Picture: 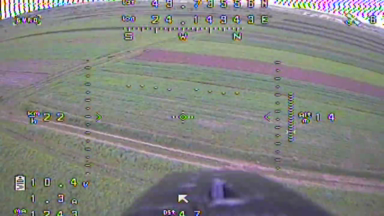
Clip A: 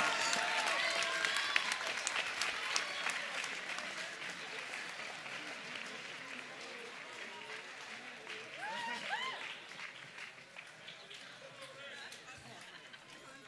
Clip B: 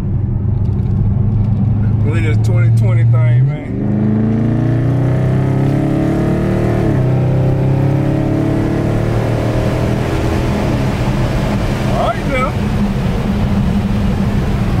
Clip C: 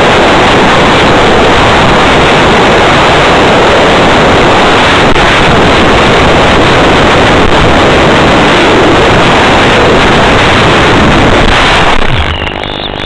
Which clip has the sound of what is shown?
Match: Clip C